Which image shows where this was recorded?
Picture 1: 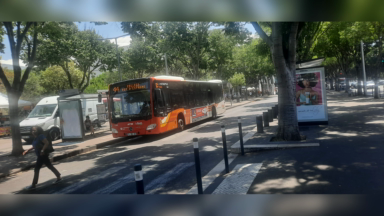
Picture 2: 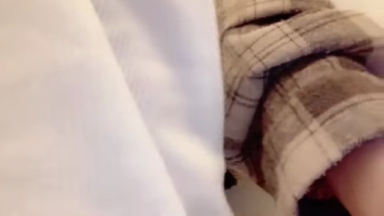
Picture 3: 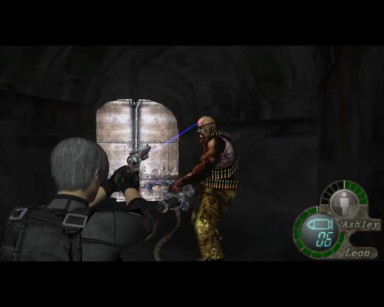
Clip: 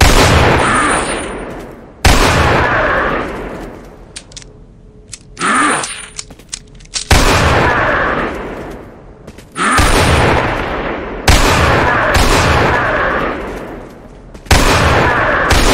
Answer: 3